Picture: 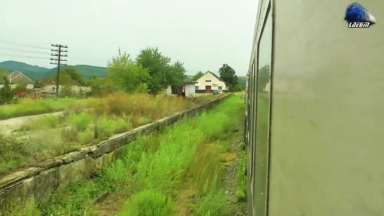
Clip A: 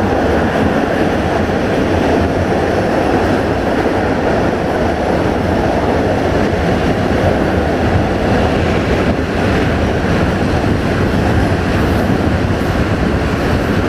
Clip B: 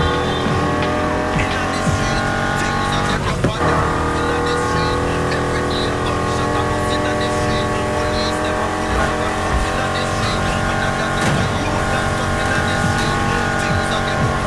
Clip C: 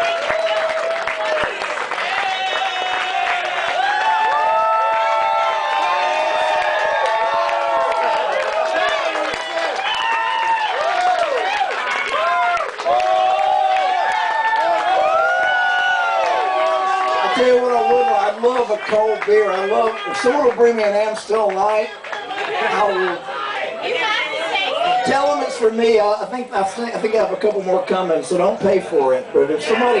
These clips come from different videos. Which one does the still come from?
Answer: A